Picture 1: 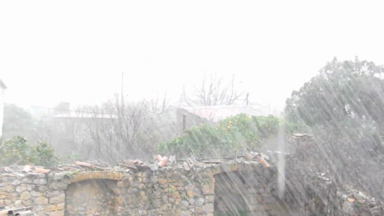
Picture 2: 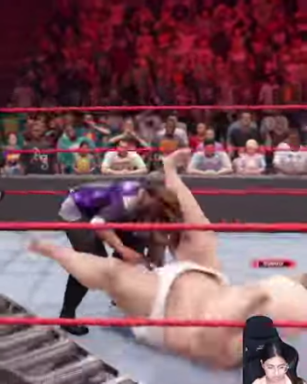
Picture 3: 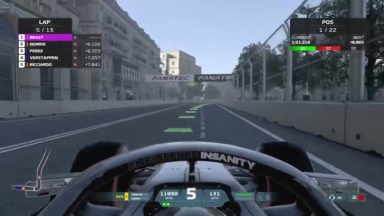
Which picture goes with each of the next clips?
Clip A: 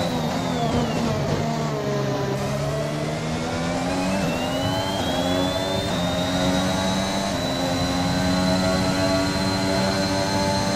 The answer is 3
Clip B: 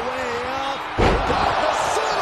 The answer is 2